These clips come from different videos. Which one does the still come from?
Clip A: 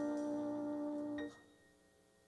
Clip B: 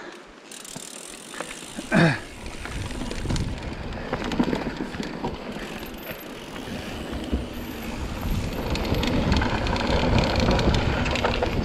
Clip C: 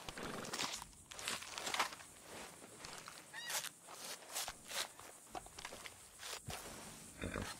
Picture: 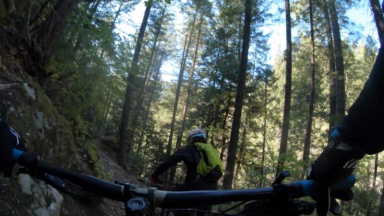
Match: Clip B